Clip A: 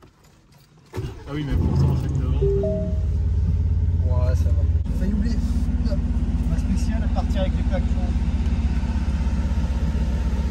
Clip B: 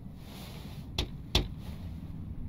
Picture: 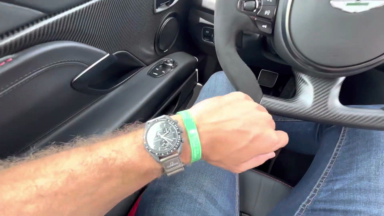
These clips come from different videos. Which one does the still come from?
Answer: A